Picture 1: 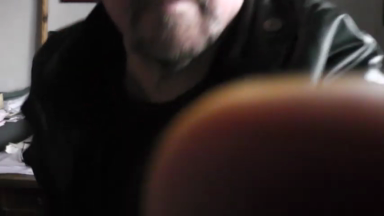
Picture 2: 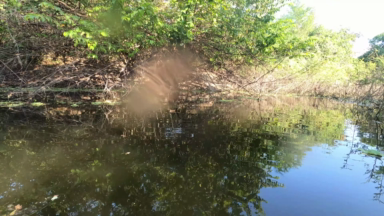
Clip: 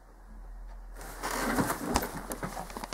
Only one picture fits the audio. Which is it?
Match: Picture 1